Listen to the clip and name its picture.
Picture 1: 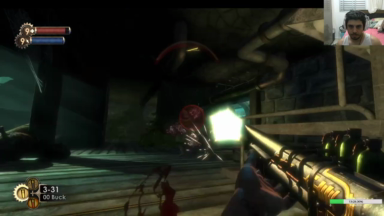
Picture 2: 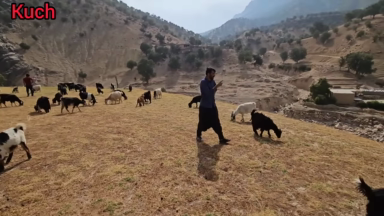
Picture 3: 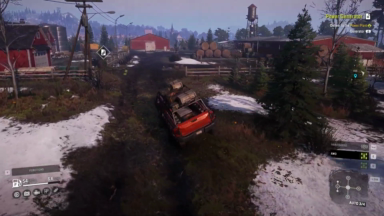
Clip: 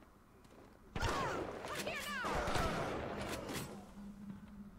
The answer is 1